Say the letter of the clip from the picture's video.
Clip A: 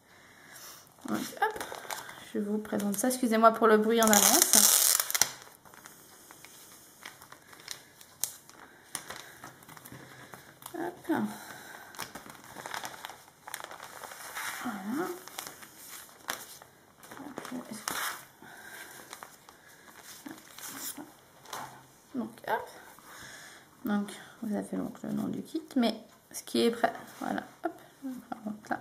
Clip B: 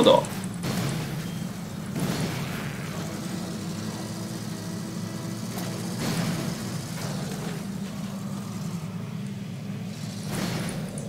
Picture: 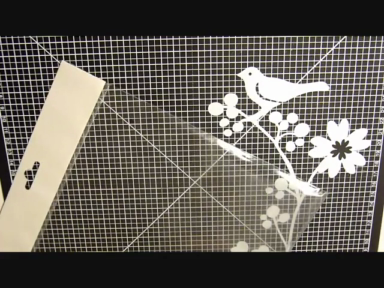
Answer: A